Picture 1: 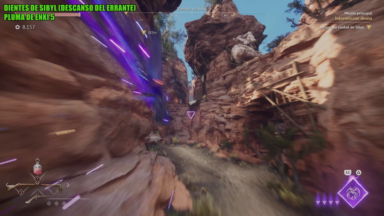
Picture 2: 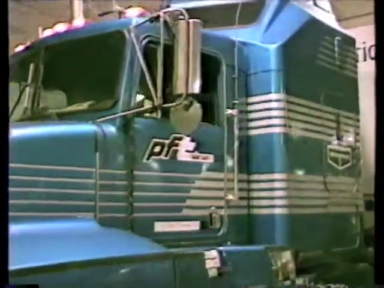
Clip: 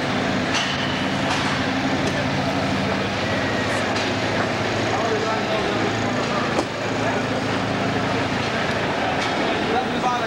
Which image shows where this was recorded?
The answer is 2